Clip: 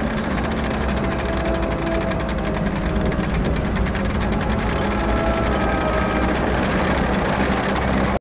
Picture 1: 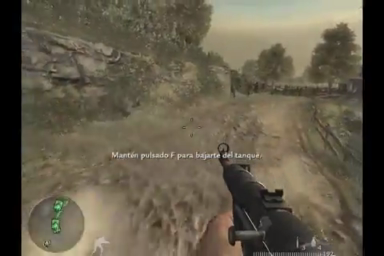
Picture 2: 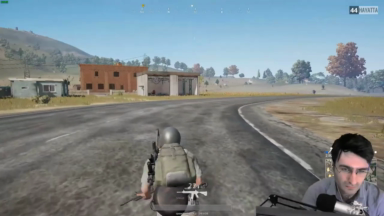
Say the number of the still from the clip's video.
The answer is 1